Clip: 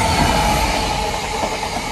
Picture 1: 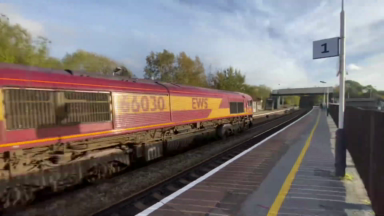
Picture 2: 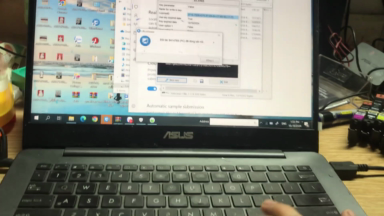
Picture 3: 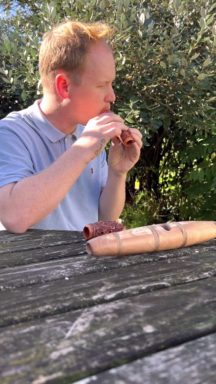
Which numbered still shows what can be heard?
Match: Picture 1